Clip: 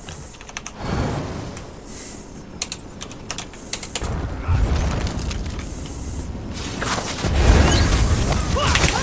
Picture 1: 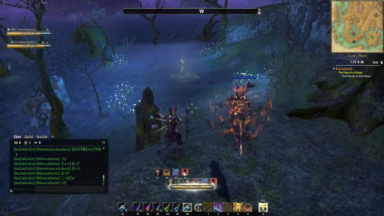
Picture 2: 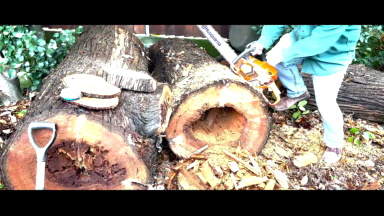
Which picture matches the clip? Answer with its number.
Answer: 1